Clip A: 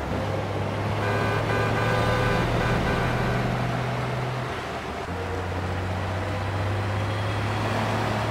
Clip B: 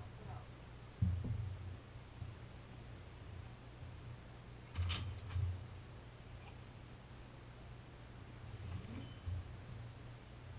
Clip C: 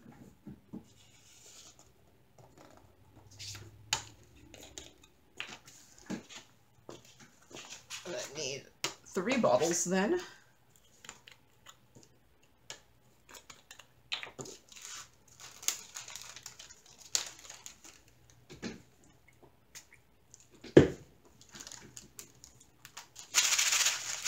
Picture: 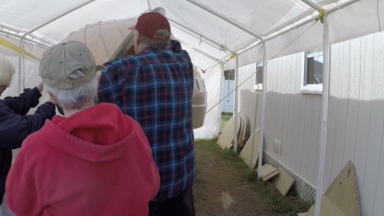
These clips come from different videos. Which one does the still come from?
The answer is B